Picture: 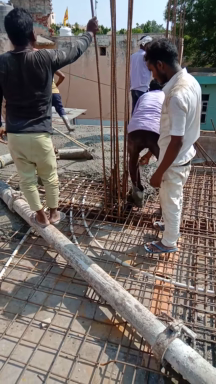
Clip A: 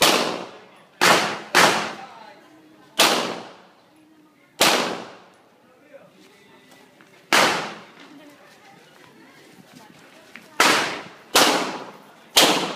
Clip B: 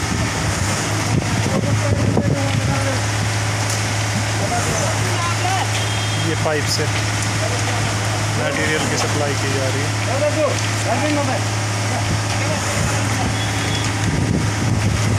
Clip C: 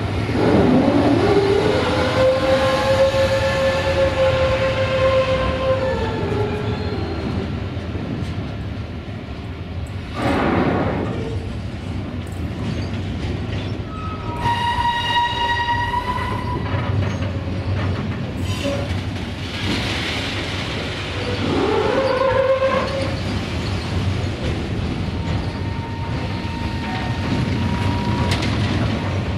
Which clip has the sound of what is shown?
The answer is B